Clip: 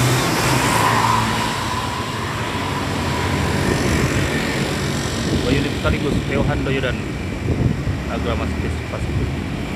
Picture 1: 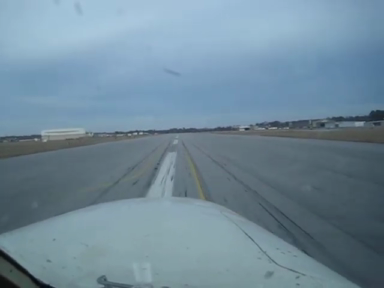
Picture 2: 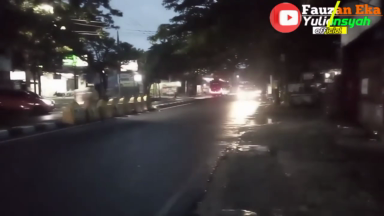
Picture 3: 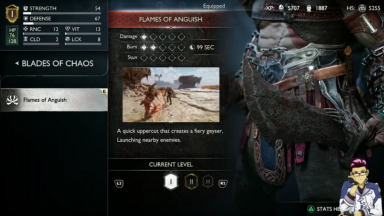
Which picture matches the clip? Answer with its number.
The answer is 2